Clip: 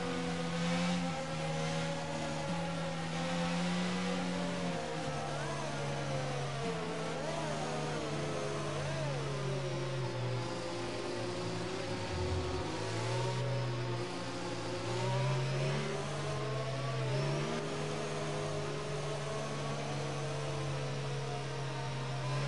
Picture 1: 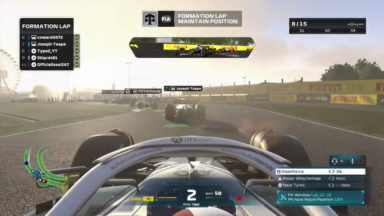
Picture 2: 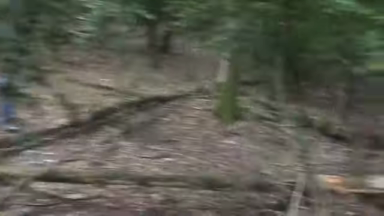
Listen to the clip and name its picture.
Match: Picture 1